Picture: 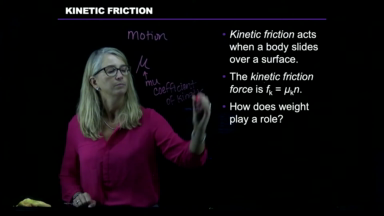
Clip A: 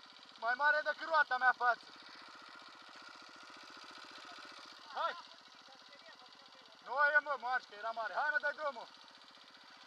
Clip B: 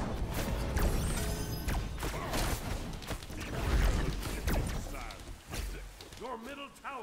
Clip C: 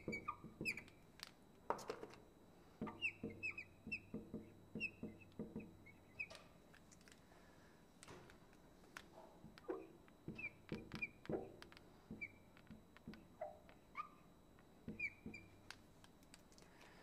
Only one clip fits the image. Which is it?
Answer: C